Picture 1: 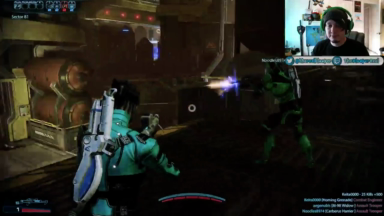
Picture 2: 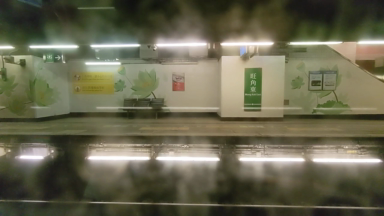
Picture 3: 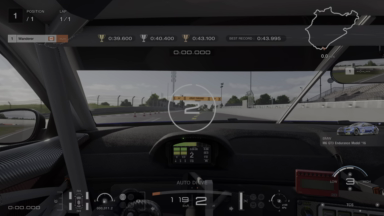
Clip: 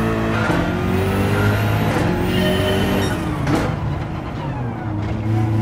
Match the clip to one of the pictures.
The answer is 3